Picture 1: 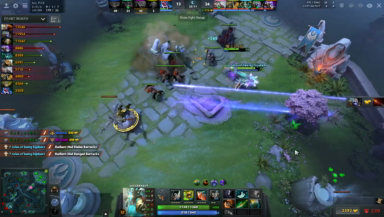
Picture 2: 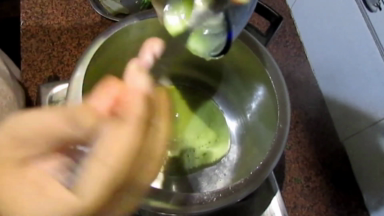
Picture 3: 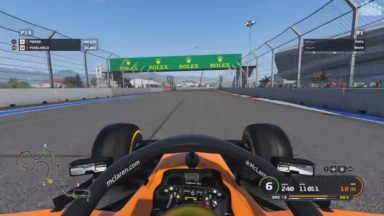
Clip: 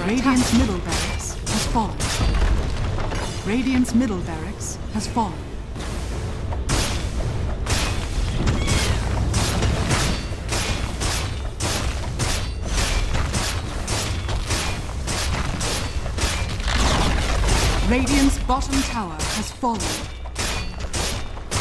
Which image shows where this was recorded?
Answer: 1